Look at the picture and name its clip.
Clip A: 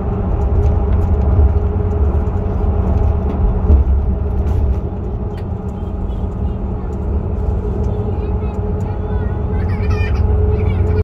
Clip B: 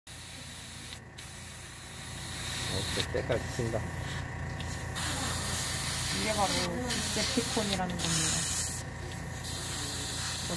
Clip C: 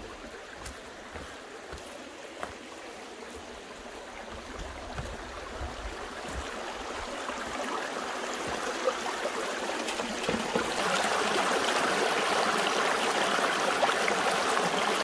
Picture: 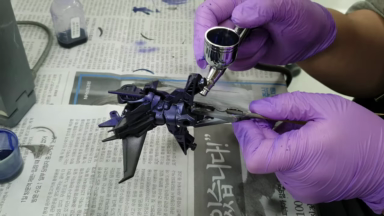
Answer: B